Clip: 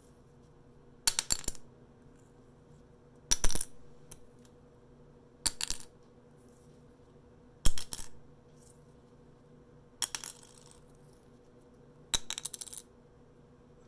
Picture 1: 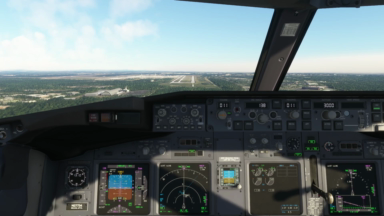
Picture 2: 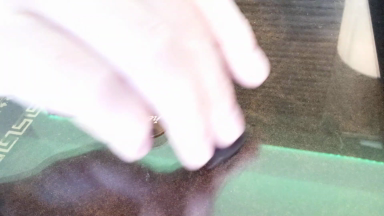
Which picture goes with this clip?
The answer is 2